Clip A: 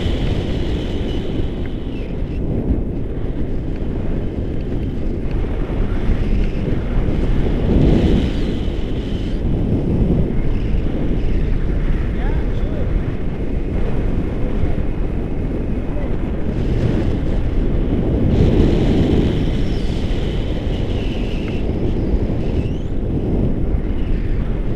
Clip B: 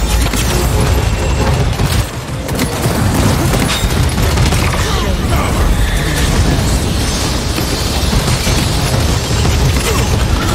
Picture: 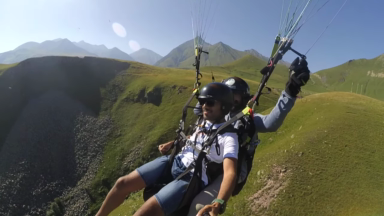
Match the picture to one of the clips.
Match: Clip A